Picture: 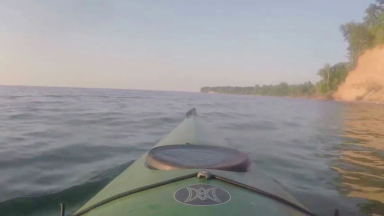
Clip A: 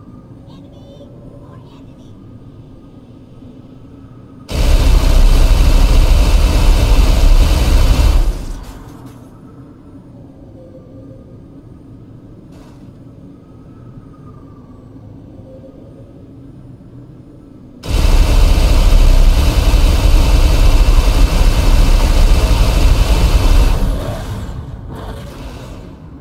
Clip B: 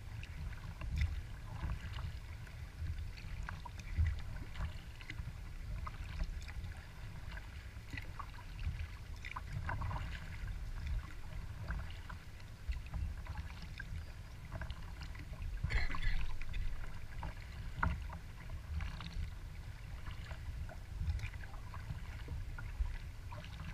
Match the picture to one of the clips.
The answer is B